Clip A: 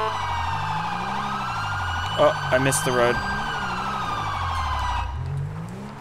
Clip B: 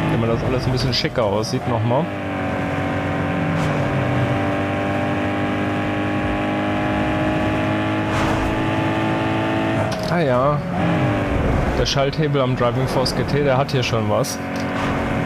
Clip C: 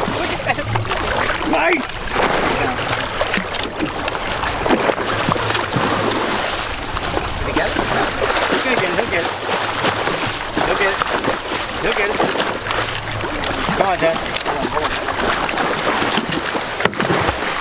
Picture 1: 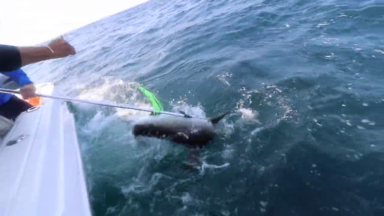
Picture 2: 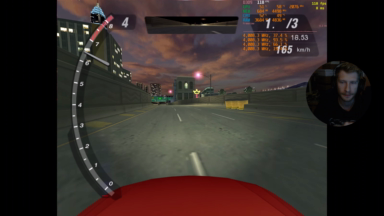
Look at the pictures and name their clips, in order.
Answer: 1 C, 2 B